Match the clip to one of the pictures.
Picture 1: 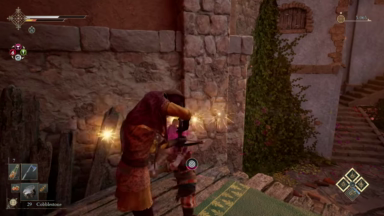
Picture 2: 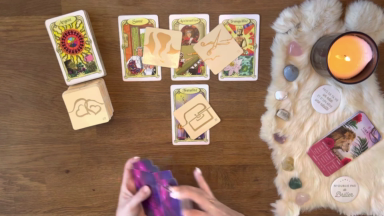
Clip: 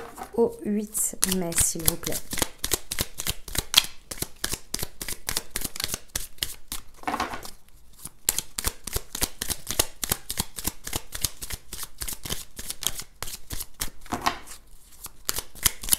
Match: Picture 2